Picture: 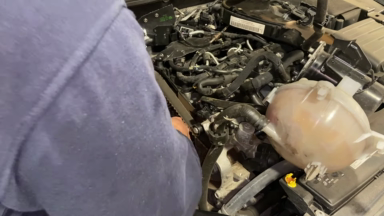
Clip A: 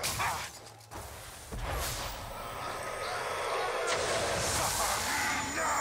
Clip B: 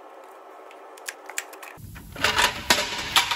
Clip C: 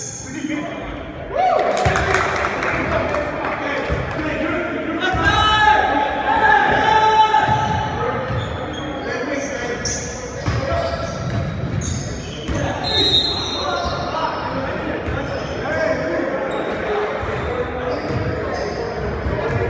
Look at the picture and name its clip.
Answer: B